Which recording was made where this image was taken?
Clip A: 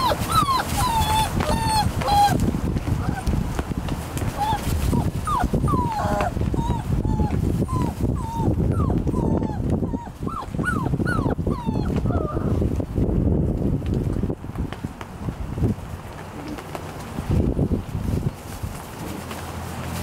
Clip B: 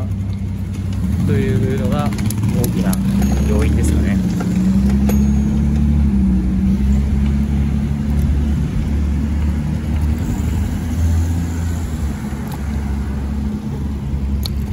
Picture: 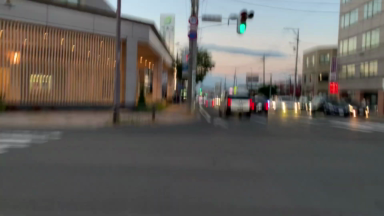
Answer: B